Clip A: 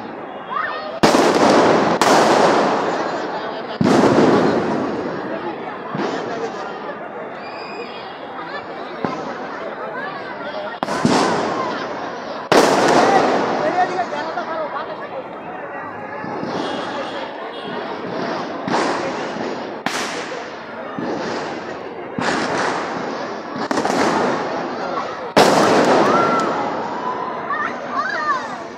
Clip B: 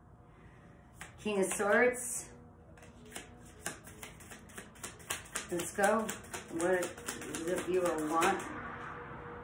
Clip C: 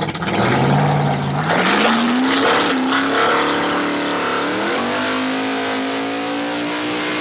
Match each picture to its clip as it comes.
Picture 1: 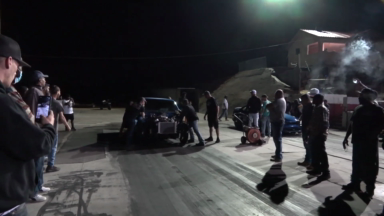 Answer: C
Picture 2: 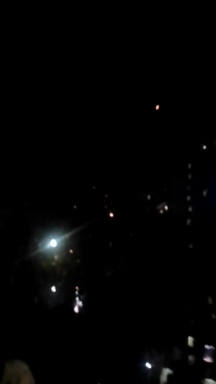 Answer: A